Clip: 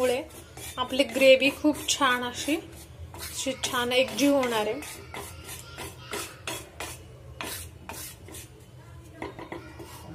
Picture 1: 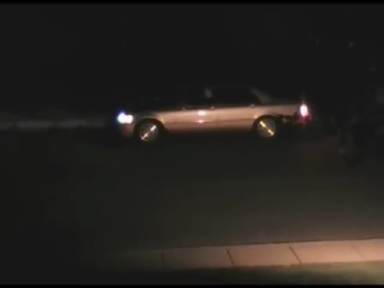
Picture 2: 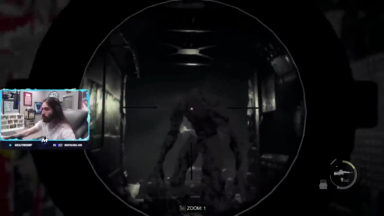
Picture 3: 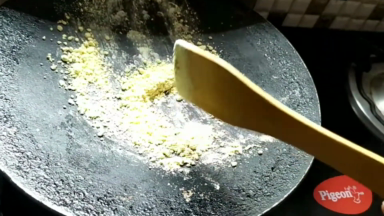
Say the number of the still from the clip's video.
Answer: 3